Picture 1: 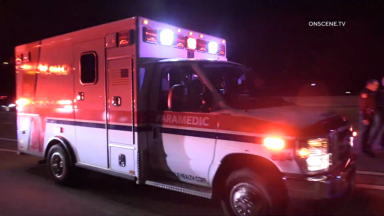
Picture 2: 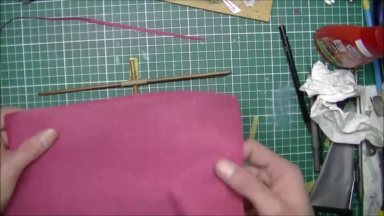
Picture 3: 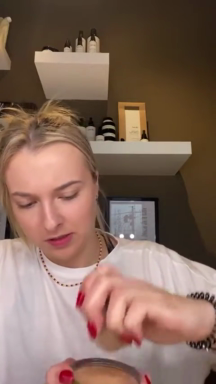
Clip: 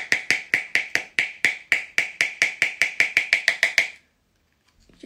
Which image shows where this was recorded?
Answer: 3